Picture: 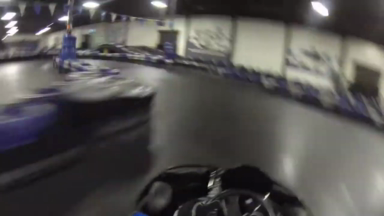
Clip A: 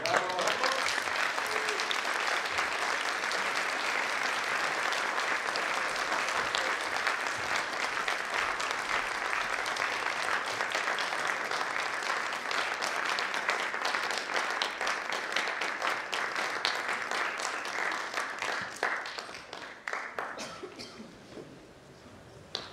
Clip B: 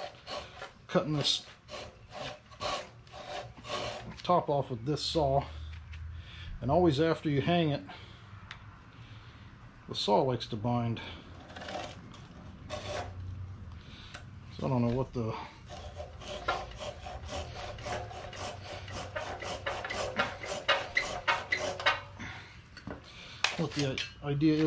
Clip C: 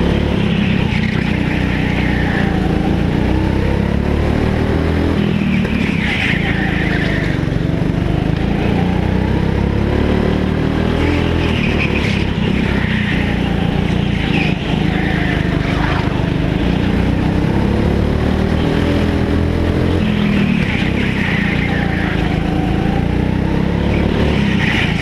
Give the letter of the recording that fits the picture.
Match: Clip C